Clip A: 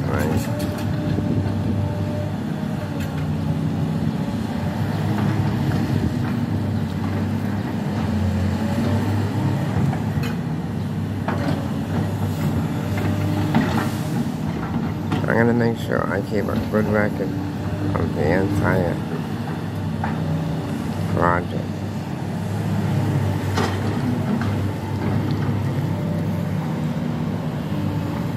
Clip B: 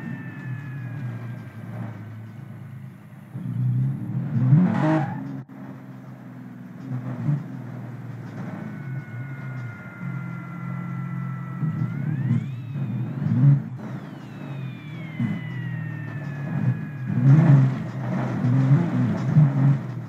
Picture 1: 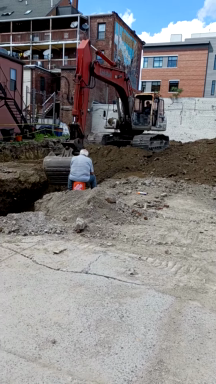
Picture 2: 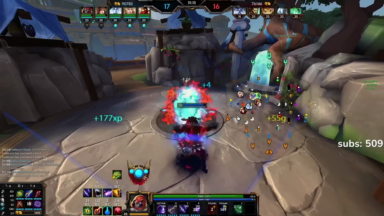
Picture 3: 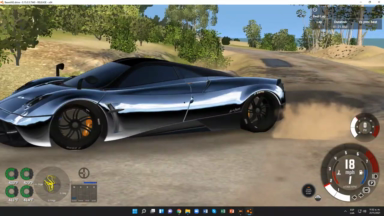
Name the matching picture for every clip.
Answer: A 1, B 3